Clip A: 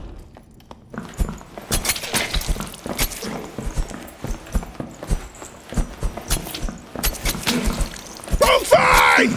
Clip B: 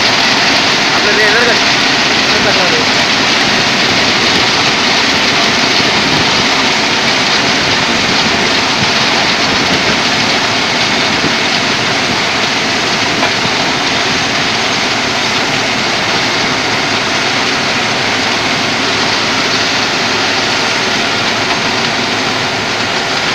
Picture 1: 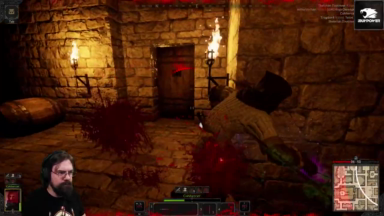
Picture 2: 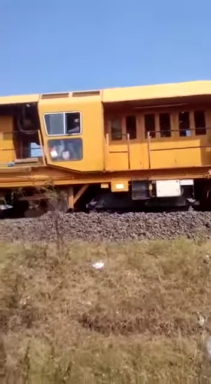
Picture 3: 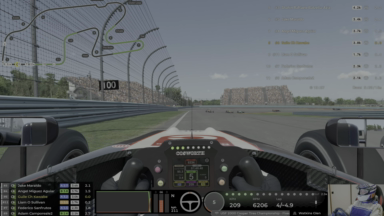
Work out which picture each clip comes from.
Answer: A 1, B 2